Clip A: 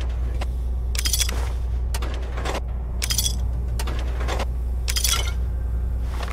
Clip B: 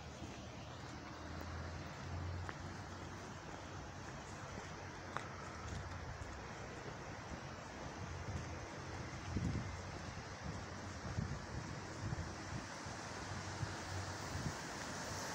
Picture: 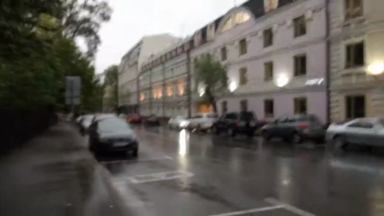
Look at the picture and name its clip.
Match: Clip B